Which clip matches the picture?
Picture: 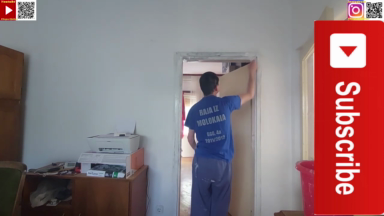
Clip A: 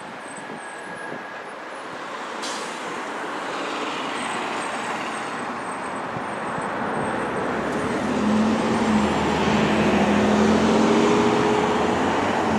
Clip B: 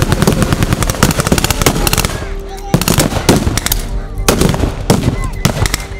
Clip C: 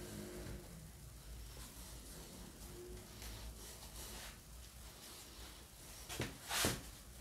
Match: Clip C